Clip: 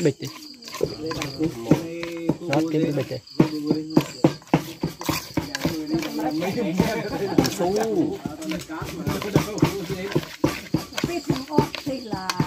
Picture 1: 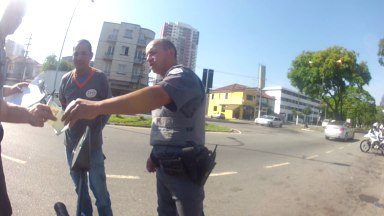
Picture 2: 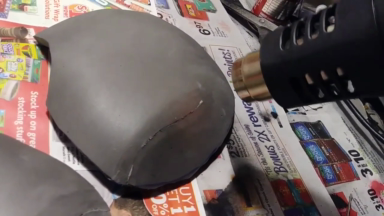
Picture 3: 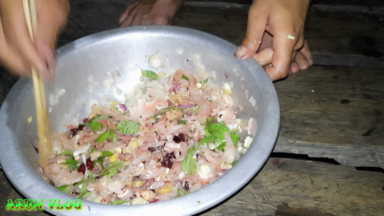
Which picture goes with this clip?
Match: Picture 3